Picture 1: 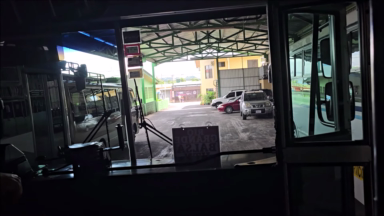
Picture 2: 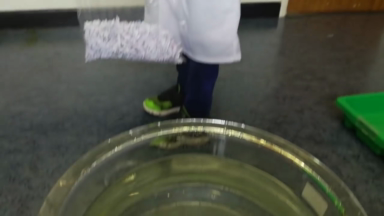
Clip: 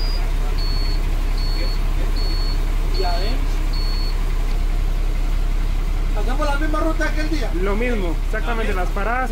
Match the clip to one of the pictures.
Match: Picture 1